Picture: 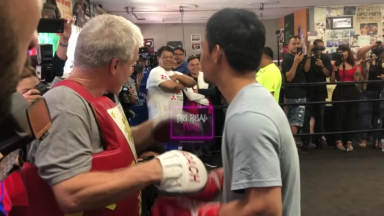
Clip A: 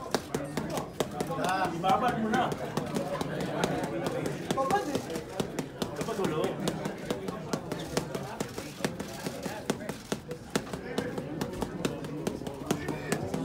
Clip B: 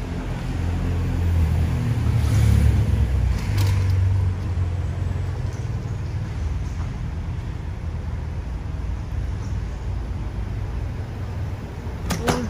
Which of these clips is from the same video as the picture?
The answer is A